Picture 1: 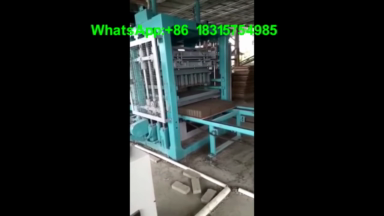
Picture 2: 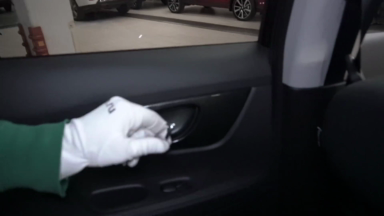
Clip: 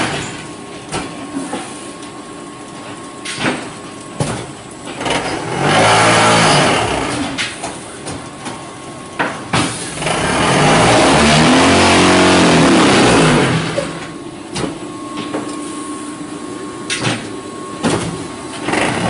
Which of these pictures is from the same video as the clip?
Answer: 1